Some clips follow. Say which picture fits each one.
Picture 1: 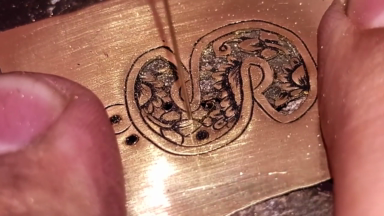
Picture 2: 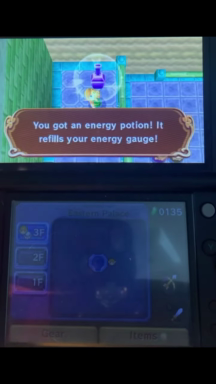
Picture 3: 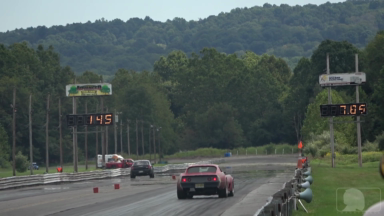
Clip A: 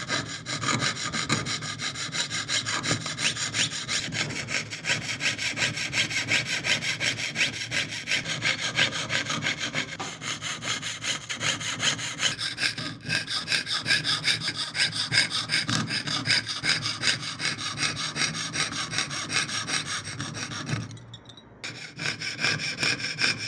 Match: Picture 1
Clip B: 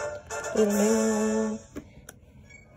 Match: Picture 2